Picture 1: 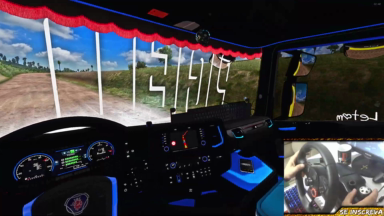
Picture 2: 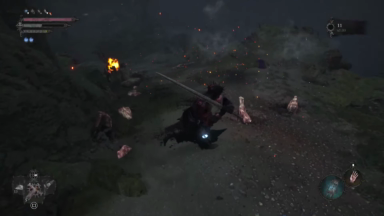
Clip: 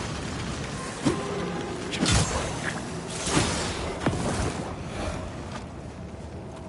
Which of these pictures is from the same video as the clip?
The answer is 2